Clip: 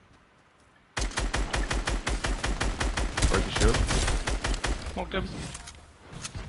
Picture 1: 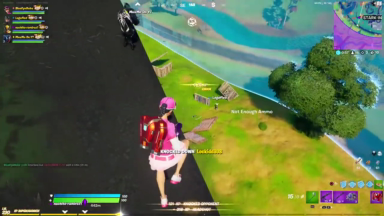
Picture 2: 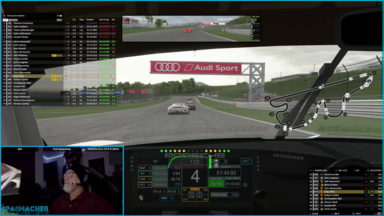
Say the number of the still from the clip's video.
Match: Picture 1